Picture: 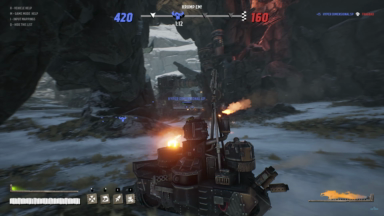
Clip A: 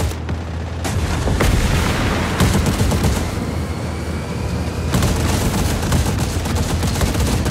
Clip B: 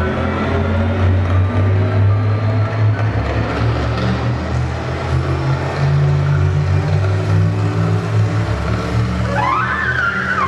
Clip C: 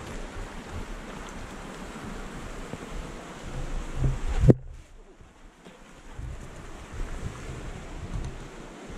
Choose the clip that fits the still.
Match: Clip A